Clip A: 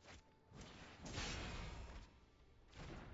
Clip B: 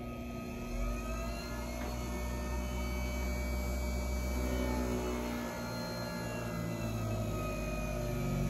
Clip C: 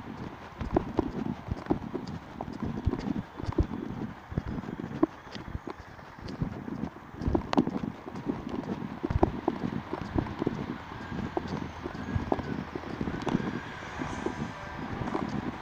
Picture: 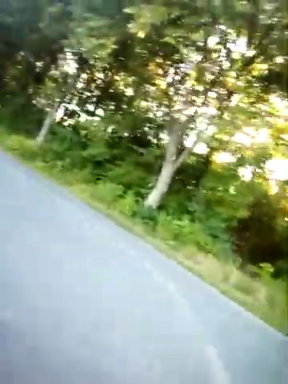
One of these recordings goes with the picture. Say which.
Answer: C